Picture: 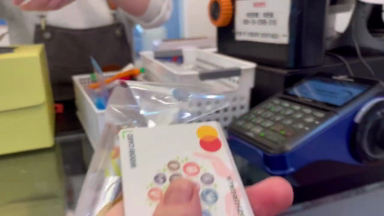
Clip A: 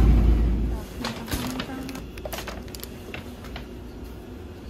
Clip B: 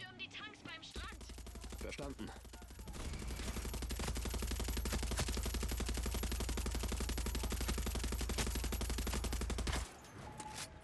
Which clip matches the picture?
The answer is A